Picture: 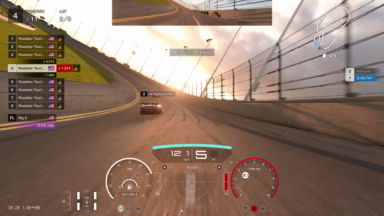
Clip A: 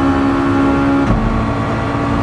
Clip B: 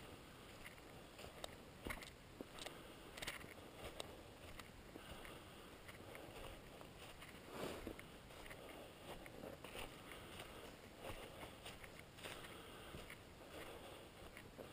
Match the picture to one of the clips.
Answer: A